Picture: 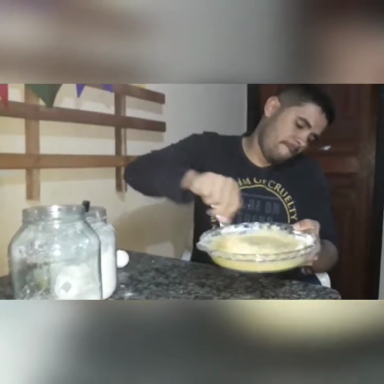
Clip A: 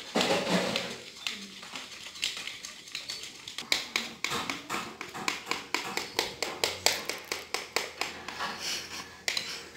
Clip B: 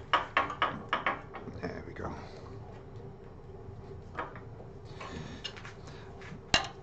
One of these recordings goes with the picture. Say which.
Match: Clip A